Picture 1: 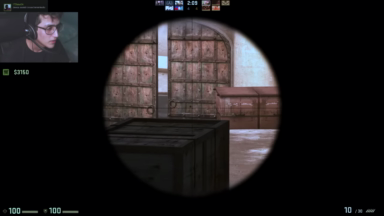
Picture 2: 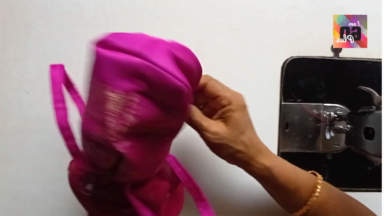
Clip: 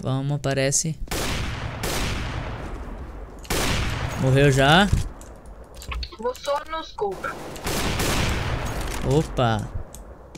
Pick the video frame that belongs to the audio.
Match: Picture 1